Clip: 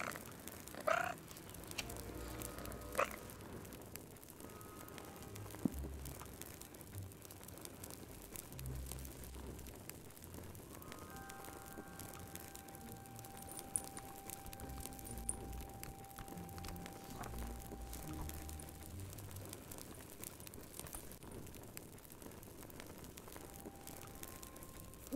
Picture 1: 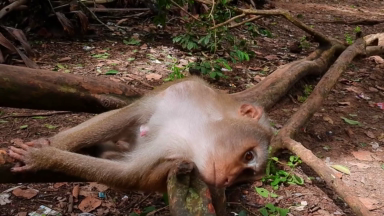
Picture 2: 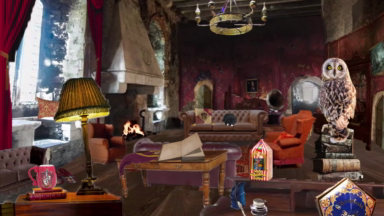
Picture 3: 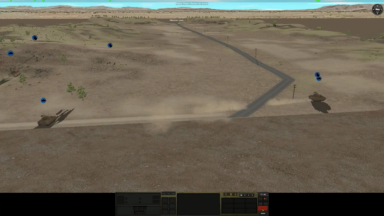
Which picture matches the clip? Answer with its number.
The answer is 2